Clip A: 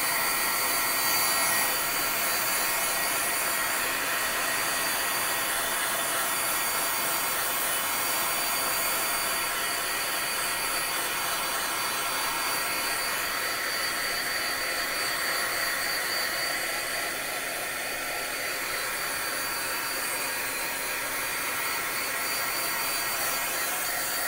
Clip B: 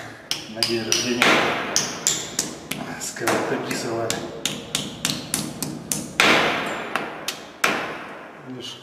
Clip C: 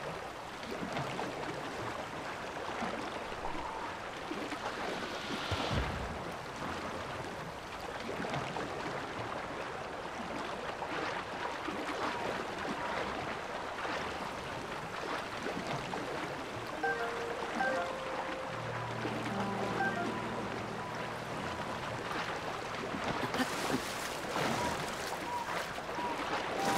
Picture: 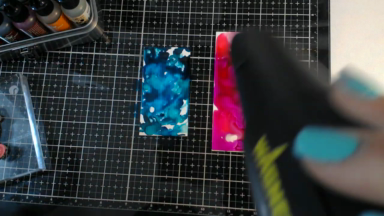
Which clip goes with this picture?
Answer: A